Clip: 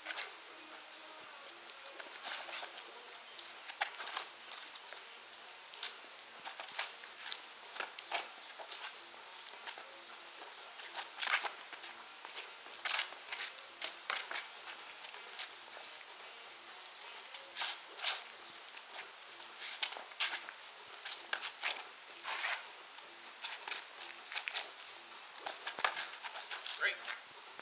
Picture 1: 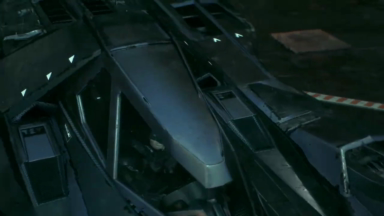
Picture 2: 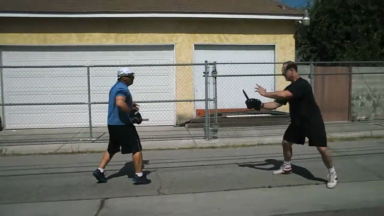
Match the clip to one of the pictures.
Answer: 2